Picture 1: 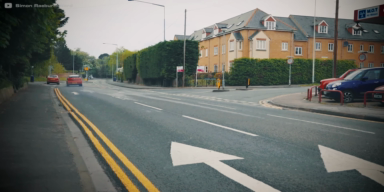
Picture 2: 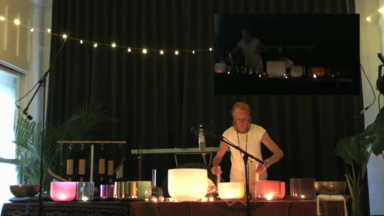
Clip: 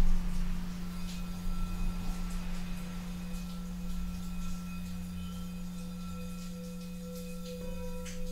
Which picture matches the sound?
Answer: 2